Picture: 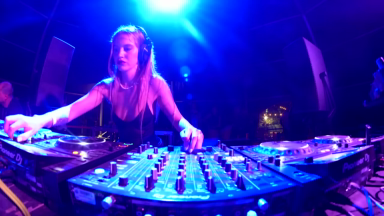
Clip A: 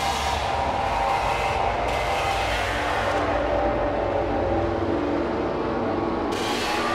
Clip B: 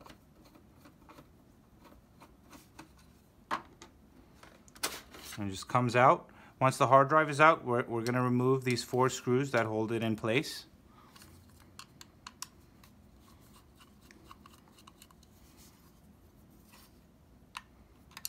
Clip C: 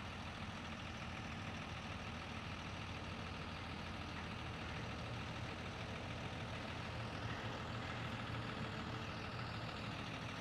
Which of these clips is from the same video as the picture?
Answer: A